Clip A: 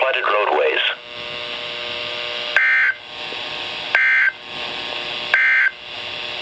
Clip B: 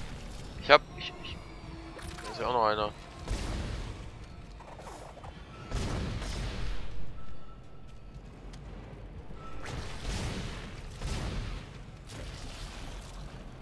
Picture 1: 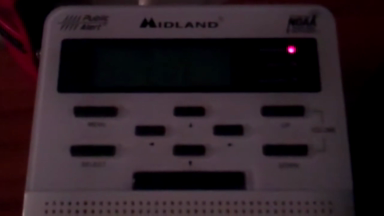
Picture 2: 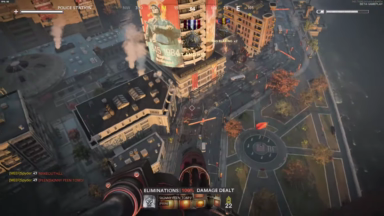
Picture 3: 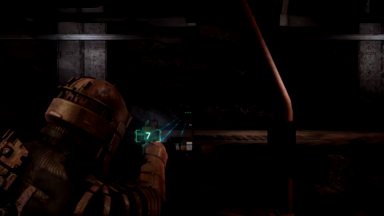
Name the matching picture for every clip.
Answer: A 1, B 3